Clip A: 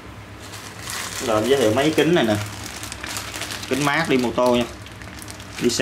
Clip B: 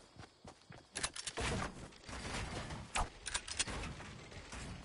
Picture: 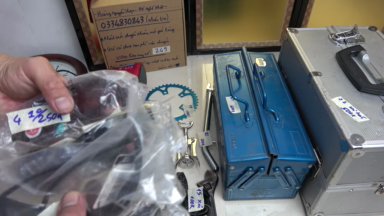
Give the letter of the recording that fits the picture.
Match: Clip A